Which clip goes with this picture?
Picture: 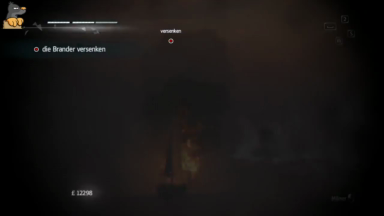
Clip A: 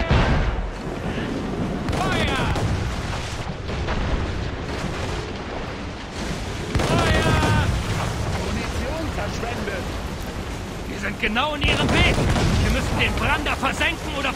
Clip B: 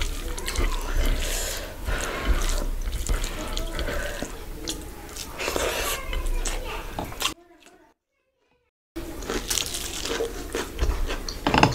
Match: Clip A